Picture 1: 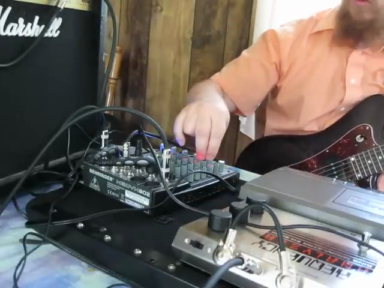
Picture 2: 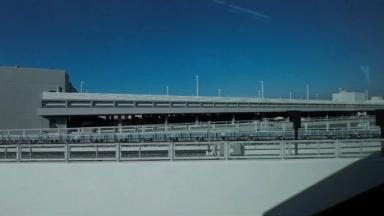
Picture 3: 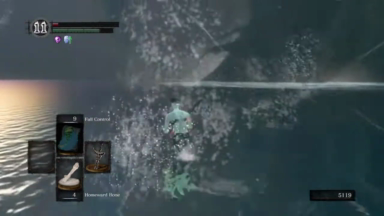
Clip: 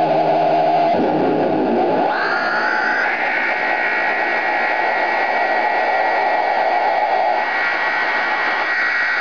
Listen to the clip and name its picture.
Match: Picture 1